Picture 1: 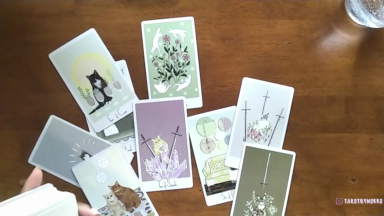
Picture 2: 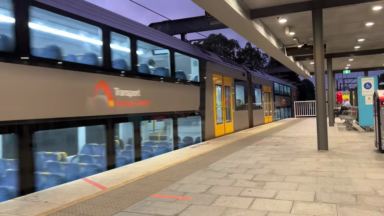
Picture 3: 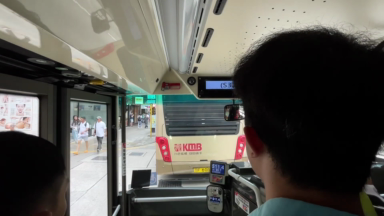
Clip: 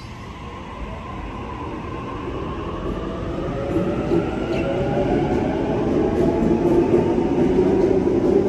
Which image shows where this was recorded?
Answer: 2